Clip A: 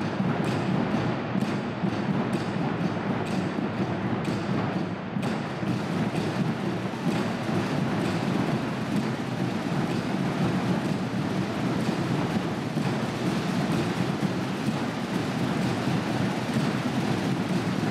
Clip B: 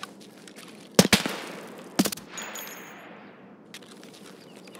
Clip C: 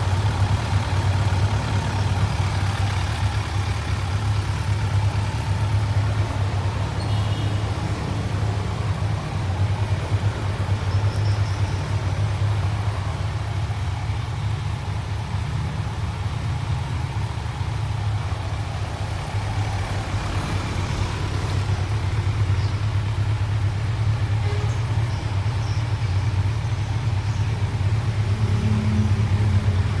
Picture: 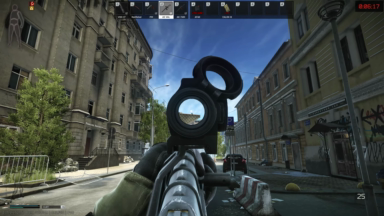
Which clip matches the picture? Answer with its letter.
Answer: B